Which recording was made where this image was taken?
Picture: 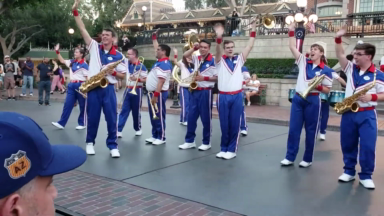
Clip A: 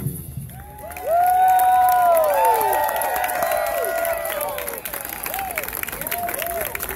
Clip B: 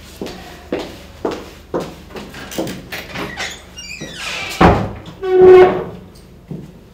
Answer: A